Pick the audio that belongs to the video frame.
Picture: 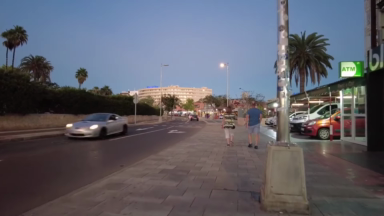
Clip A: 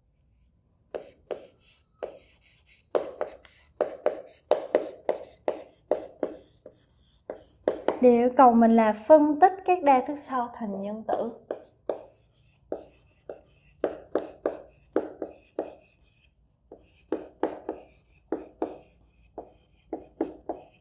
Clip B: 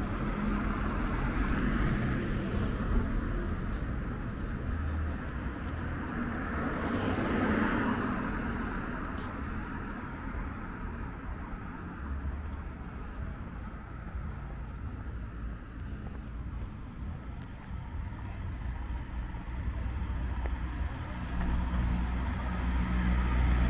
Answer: B